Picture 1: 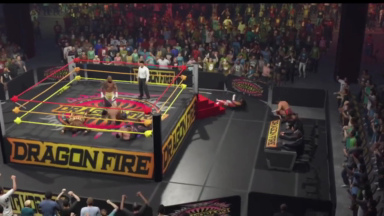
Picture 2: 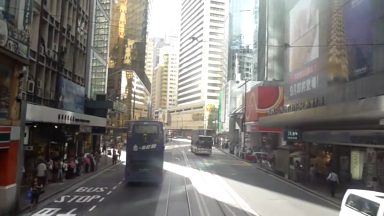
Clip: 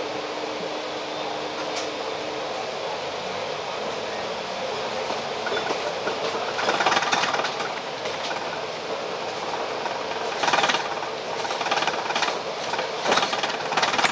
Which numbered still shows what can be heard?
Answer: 2